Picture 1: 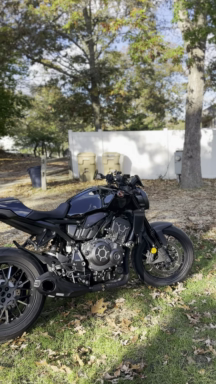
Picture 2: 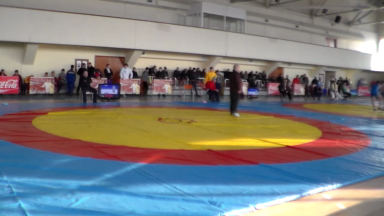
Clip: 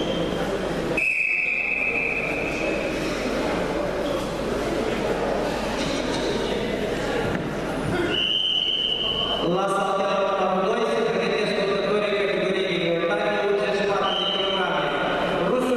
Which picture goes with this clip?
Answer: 2